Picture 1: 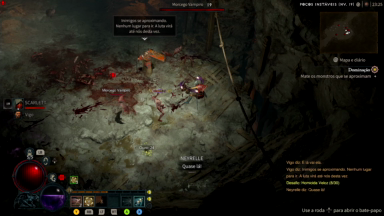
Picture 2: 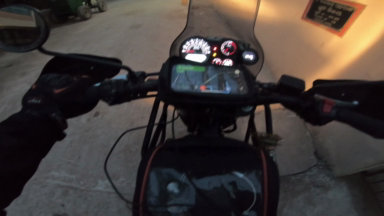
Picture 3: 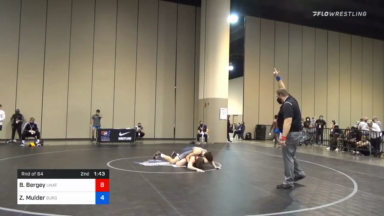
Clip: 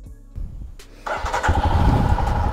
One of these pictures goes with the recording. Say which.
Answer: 2